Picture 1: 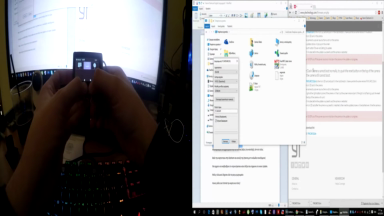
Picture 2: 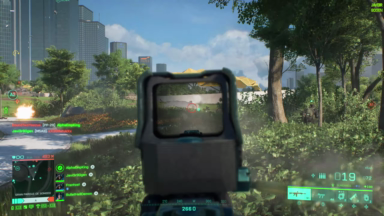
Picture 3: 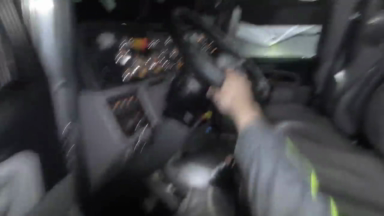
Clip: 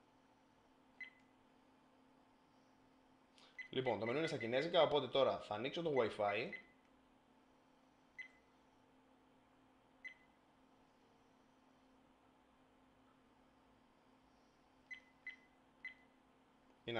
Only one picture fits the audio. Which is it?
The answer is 1